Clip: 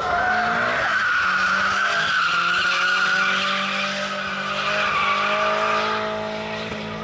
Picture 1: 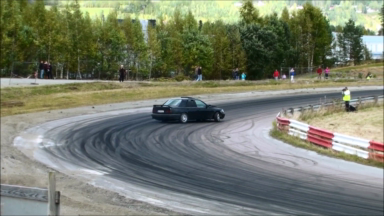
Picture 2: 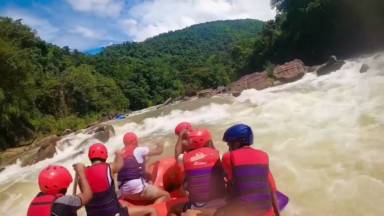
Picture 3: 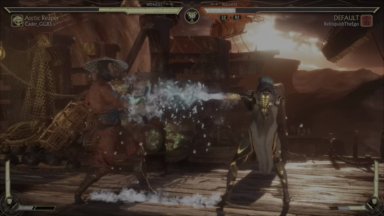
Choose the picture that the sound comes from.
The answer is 1